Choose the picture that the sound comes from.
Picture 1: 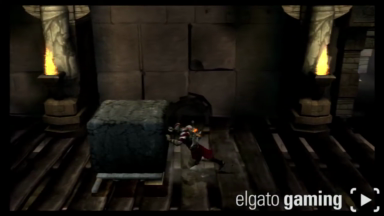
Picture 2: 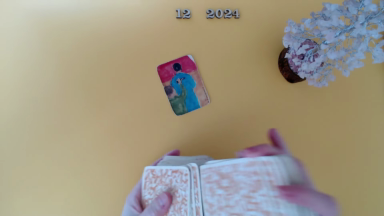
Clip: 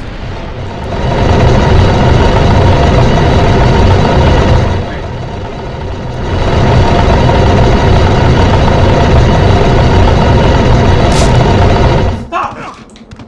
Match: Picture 1